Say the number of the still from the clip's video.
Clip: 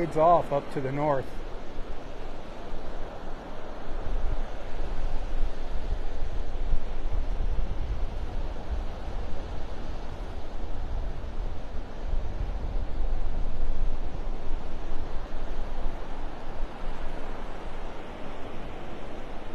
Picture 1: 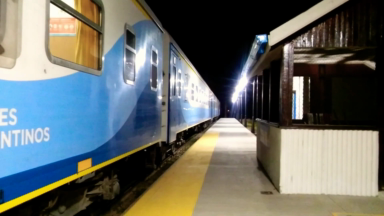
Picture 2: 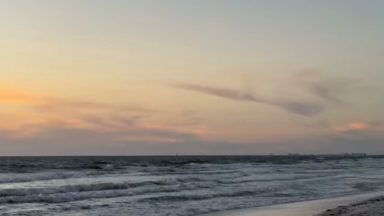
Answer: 2